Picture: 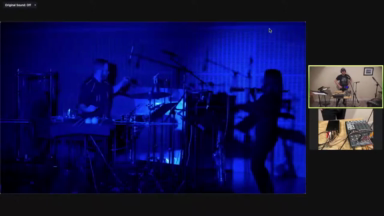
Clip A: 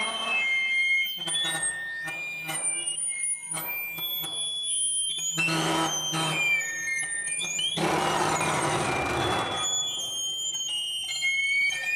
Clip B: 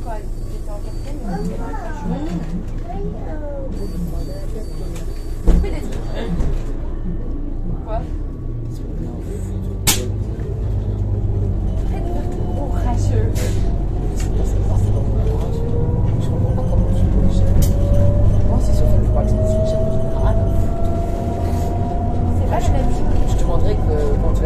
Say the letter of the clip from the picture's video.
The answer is A